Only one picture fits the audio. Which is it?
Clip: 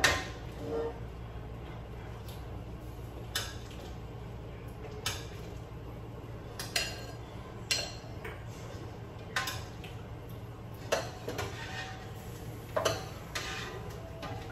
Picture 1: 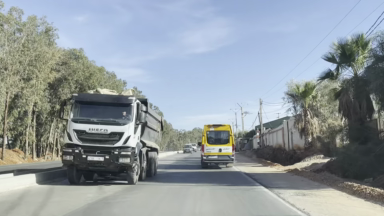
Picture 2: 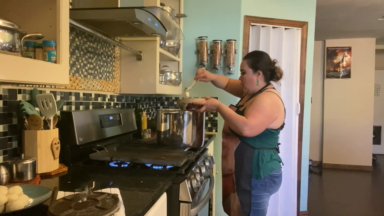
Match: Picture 2